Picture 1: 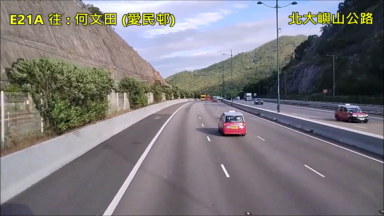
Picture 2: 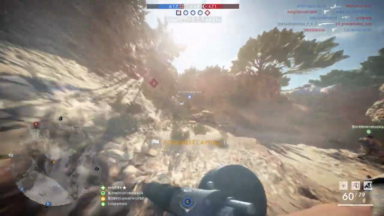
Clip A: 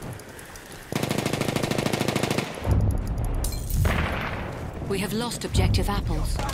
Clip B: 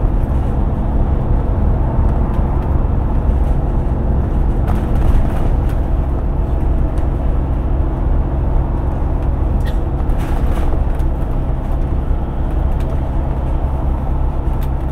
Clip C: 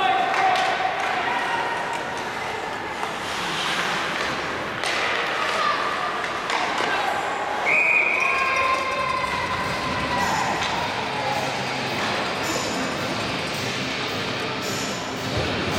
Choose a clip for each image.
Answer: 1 B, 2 A